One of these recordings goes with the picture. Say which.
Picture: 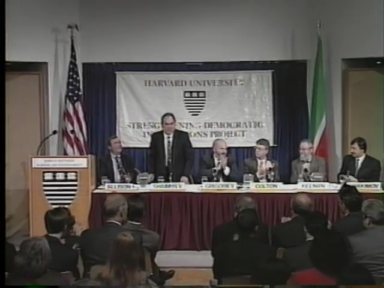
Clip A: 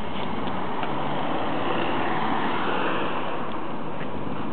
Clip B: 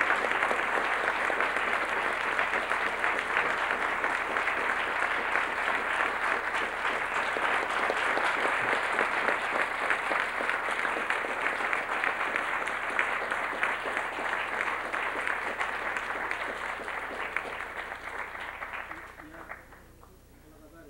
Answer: B